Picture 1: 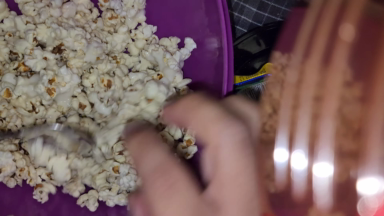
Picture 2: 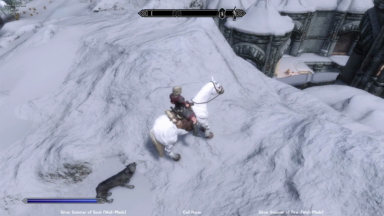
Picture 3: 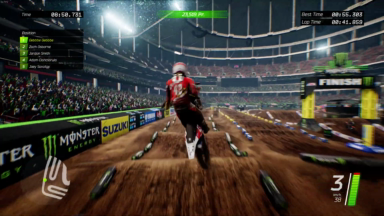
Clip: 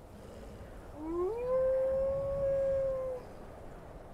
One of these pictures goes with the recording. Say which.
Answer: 2